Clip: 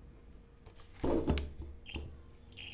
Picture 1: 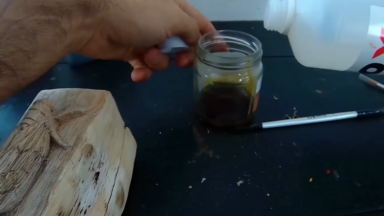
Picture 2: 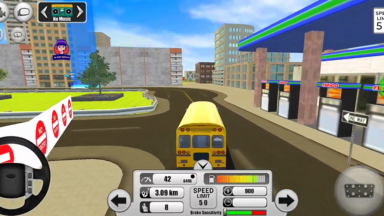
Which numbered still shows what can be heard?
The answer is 1